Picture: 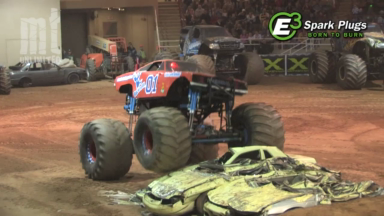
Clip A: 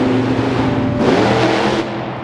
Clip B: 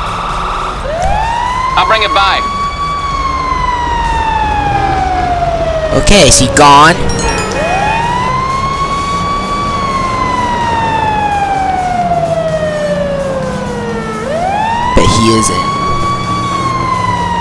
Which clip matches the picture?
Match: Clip A